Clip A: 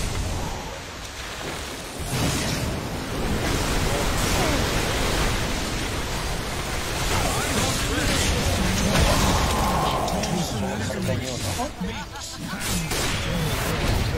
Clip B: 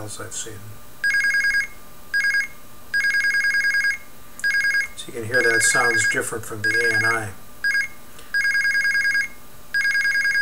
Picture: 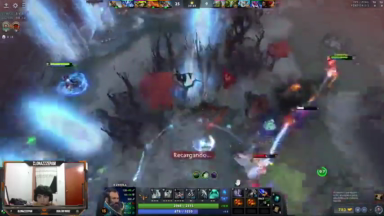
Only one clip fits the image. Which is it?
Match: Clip A